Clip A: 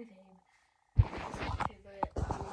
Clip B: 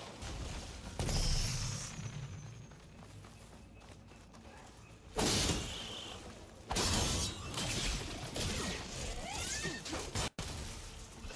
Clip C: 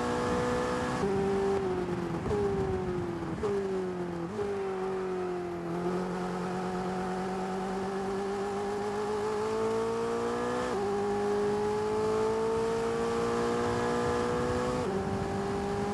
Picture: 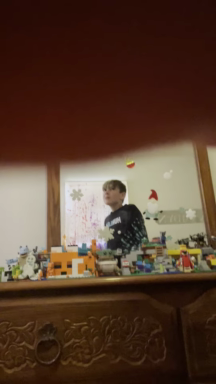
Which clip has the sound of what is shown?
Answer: A